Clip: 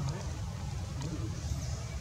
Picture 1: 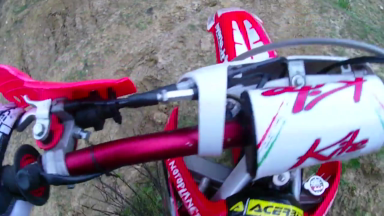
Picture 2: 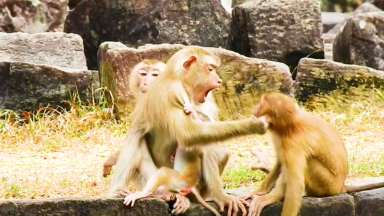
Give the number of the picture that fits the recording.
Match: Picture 2